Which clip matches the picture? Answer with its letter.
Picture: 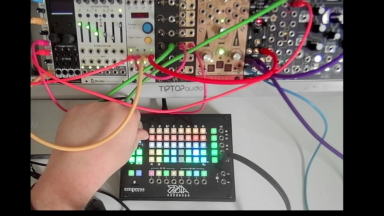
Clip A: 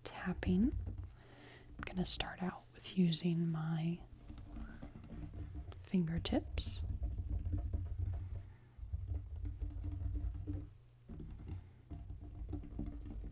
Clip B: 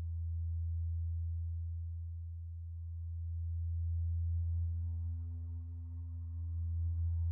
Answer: B